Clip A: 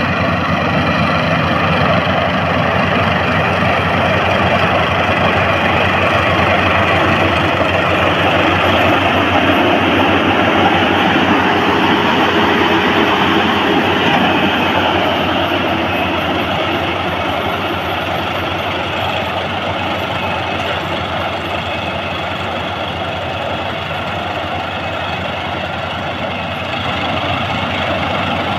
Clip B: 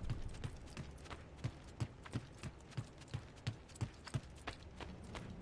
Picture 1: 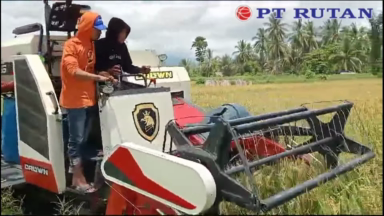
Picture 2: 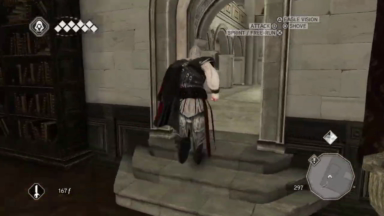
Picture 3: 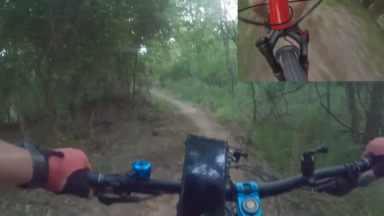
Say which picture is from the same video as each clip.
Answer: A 1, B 2